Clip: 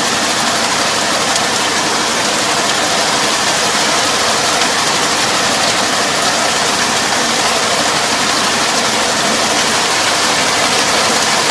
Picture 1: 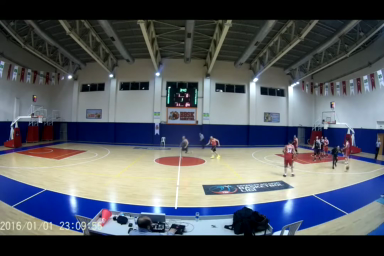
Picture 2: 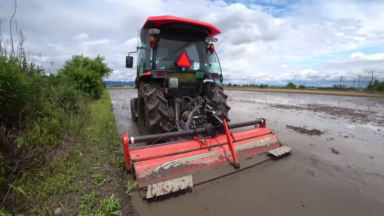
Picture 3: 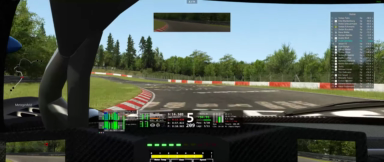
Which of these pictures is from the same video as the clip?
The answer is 2